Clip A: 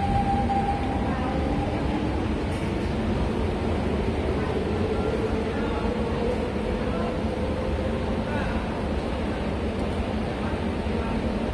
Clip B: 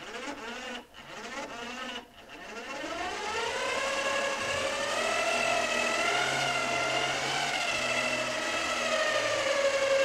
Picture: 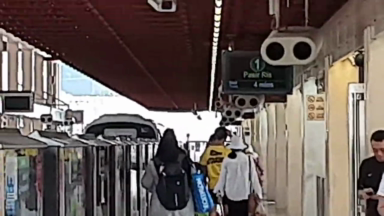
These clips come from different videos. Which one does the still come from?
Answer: A